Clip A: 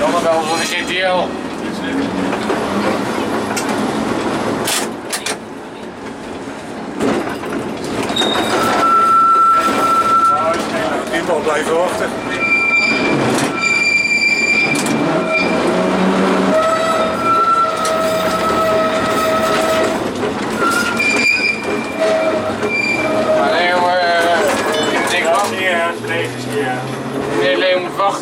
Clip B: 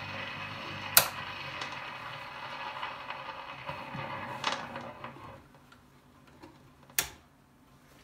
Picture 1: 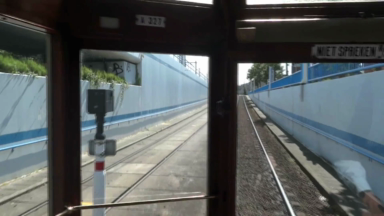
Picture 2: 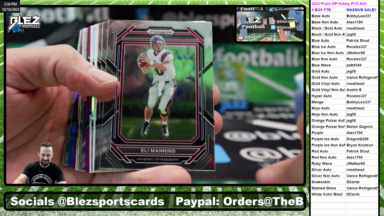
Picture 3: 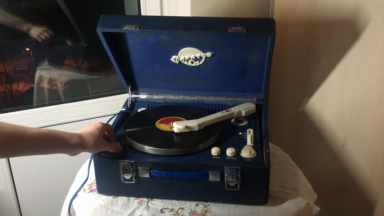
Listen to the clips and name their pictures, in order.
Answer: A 1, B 3